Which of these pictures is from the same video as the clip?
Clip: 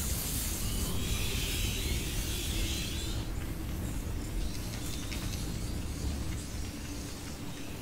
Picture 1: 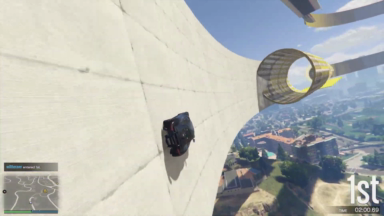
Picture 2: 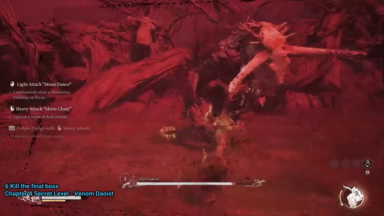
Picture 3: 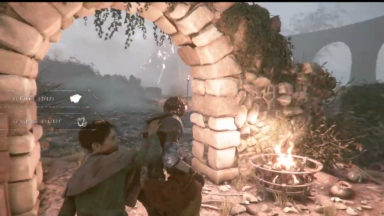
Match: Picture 3